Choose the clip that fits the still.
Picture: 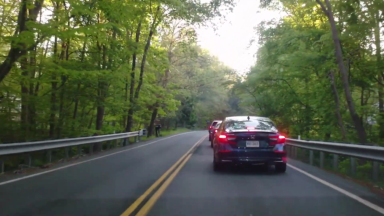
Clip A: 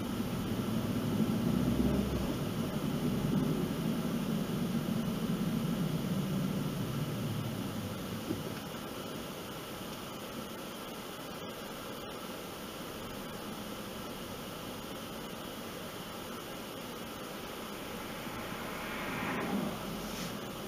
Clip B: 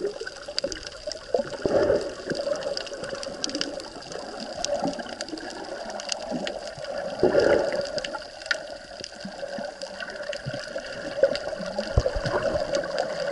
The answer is A